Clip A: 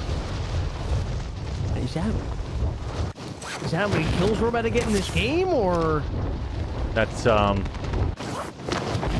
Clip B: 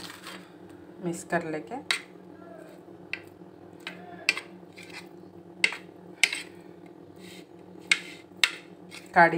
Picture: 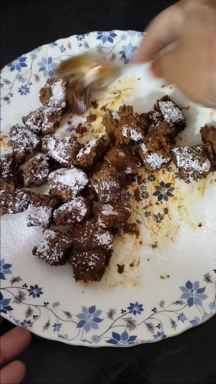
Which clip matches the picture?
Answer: B